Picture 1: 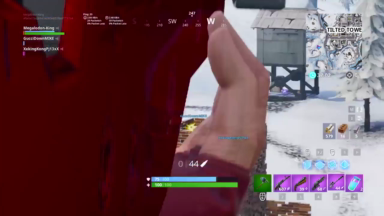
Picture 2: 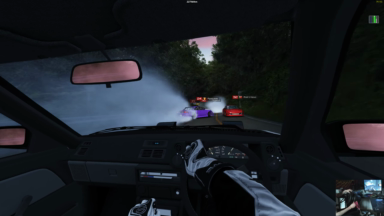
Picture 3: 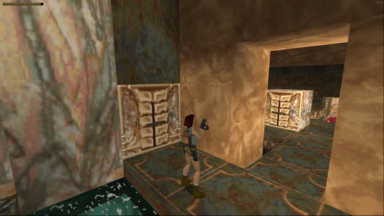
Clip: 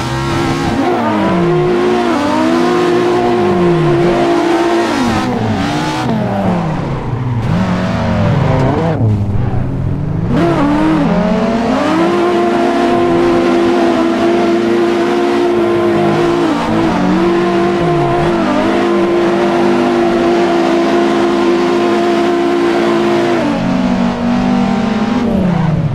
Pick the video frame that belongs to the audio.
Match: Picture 2